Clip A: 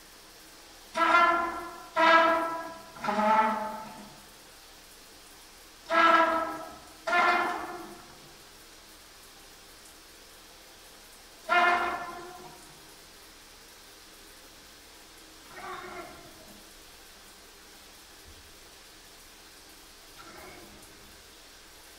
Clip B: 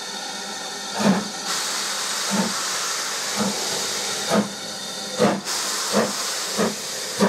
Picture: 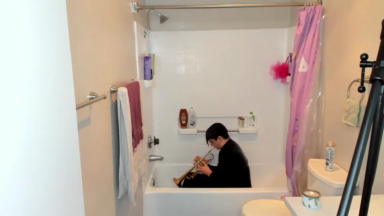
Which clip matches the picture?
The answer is A